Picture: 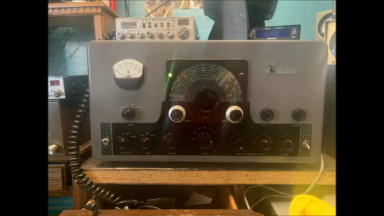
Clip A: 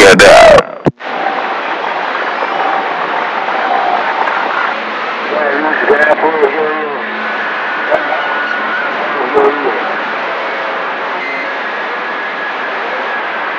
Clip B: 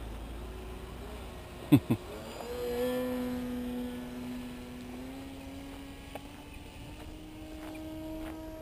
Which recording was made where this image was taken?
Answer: A